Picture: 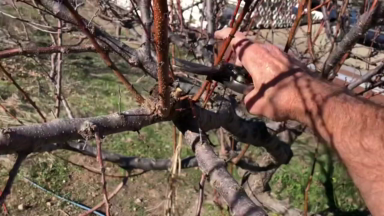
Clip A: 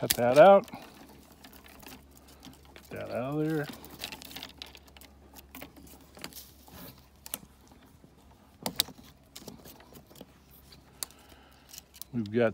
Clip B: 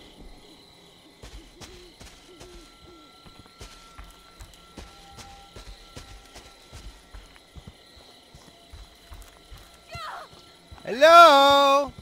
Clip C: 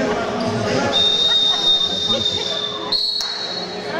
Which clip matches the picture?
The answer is A